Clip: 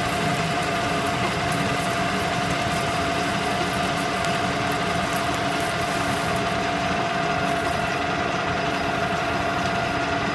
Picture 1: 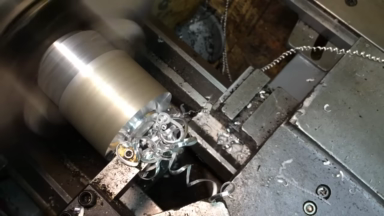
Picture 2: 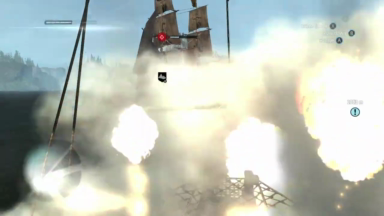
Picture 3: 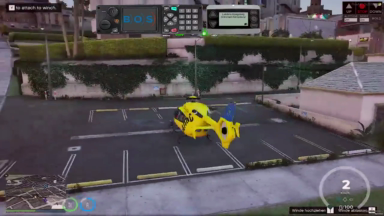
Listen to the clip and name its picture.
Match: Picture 1